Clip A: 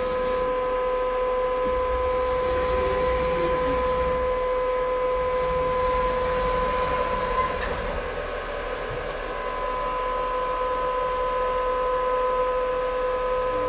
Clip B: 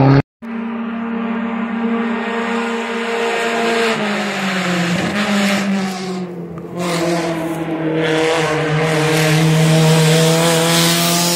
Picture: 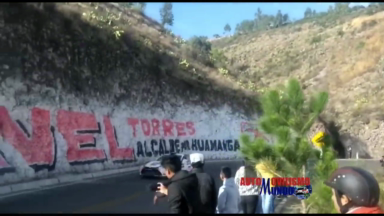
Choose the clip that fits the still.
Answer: B